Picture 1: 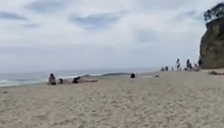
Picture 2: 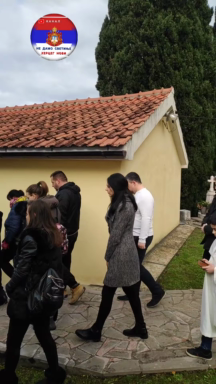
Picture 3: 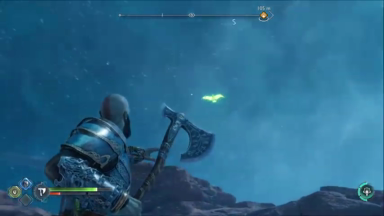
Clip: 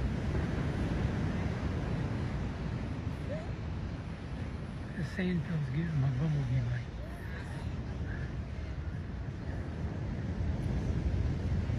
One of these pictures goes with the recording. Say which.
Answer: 1